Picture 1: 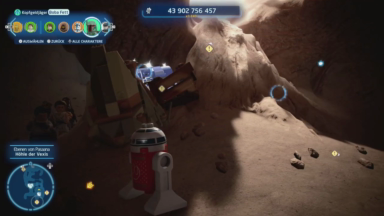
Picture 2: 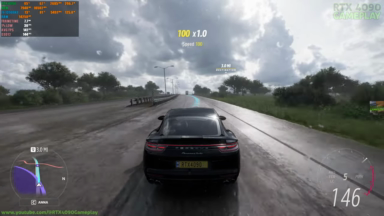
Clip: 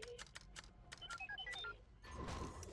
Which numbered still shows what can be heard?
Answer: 1